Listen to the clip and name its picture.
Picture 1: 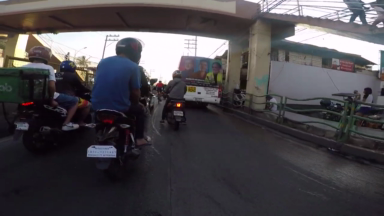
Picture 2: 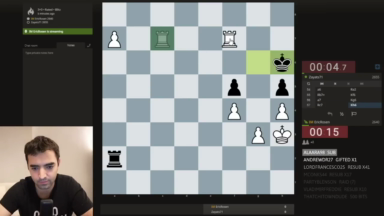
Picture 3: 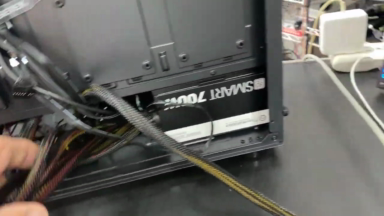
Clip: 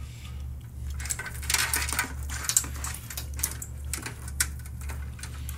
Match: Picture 3